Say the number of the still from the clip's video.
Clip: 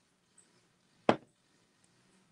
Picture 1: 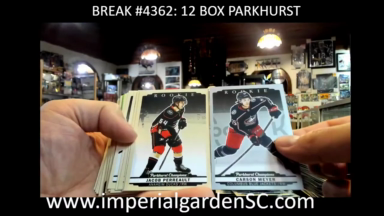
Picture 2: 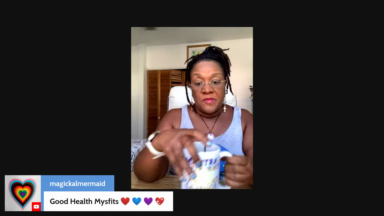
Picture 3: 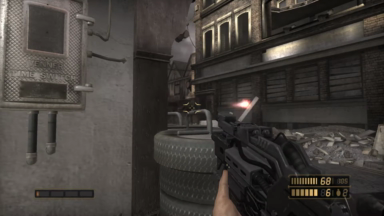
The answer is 2